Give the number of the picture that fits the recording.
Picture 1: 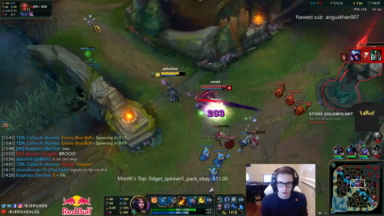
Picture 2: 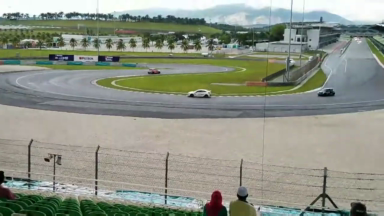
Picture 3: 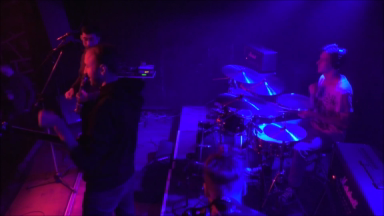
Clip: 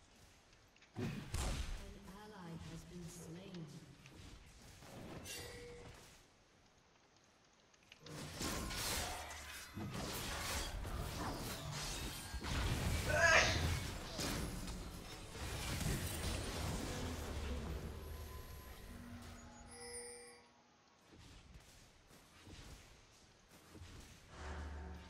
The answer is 1